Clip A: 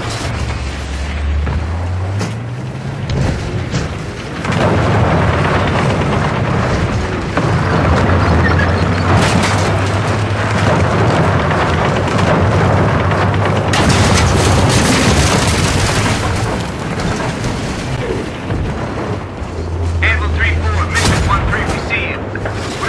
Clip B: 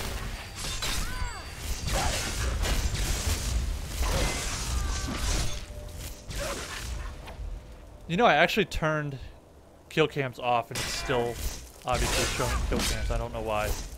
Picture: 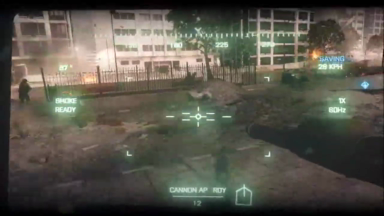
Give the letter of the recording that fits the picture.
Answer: A